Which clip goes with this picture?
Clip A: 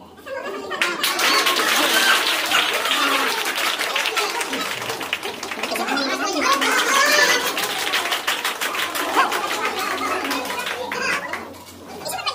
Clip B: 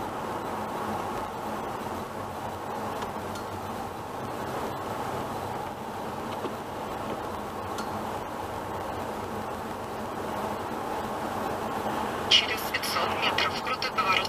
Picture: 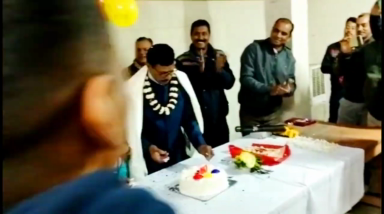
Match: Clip A